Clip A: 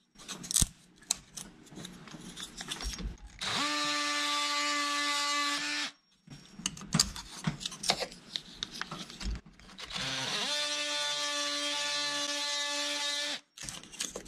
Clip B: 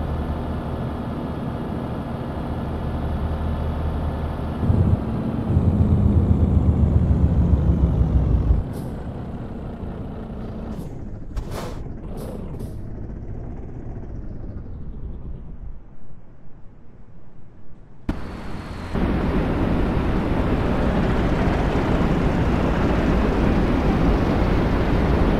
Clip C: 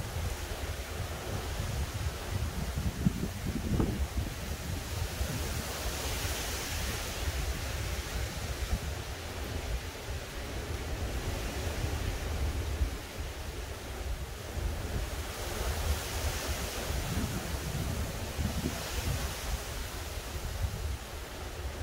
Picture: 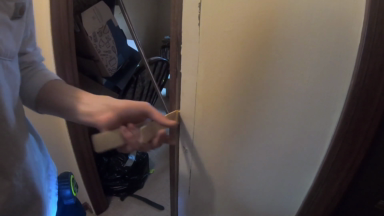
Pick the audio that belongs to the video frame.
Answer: A